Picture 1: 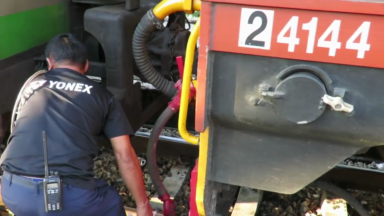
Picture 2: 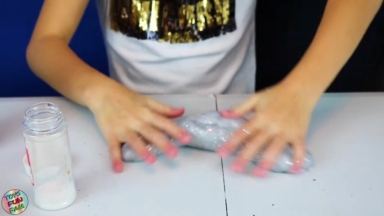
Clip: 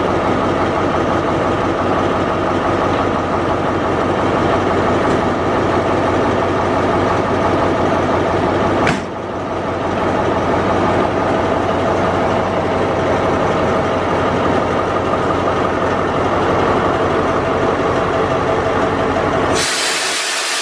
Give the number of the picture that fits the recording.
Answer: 1